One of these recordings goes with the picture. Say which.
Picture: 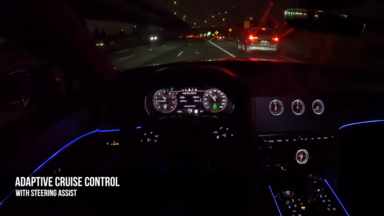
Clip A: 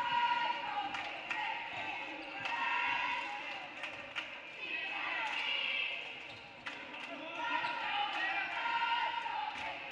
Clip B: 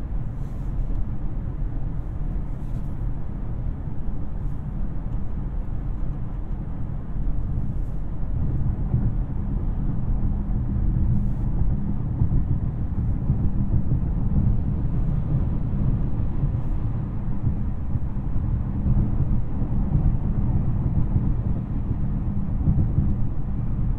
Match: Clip B